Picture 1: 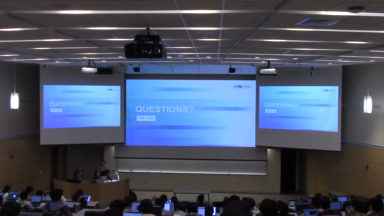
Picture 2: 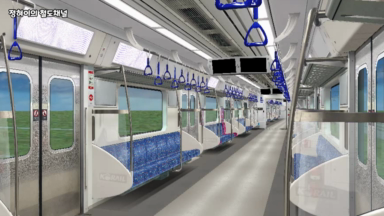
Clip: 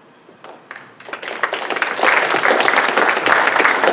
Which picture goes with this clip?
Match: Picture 1